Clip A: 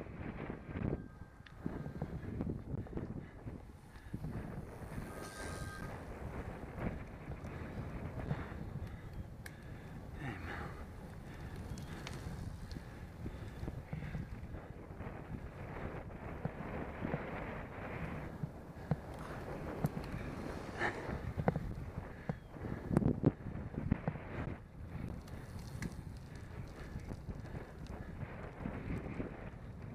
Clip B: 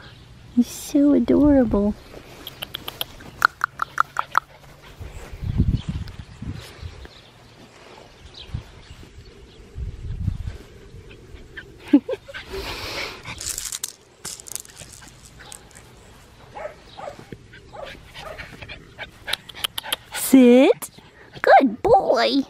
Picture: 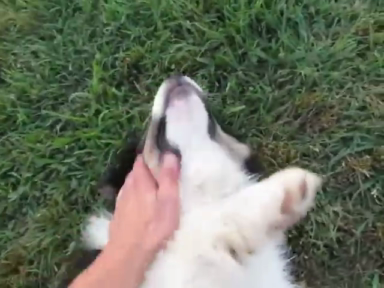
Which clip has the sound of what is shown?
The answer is B